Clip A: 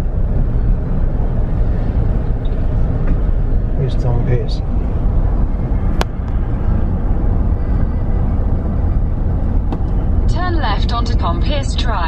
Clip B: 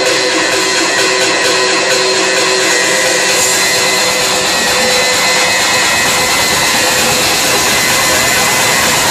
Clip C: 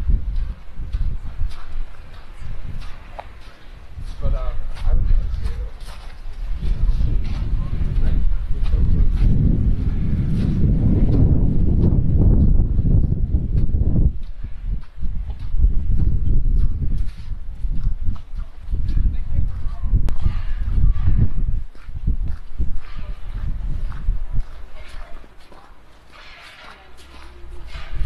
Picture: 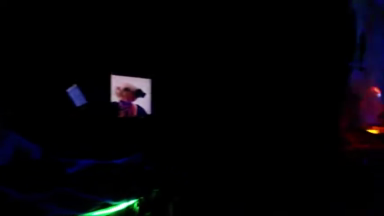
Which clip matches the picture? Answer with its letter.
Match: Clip B